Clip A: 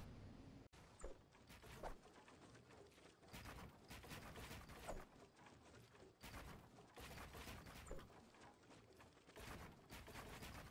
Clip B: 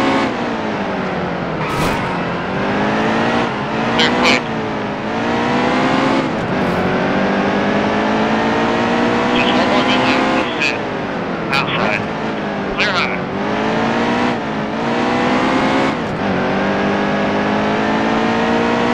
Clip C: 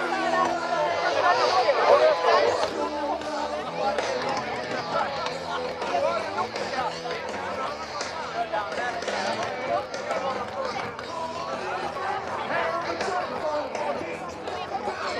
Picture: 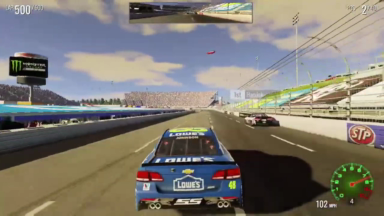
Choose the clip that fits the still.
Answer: B